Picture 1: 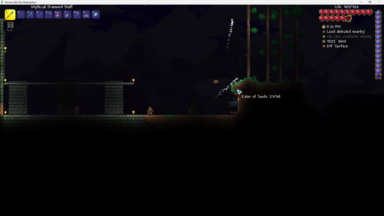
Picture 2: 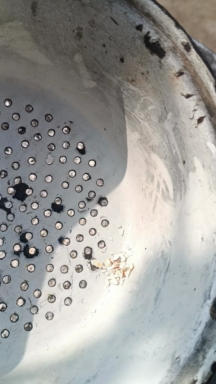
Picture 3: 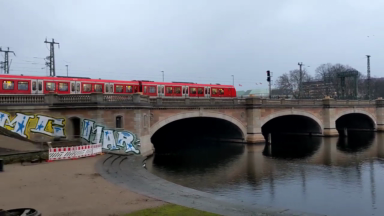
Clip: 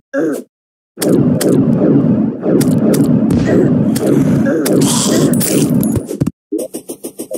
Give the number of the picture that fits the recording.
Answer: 1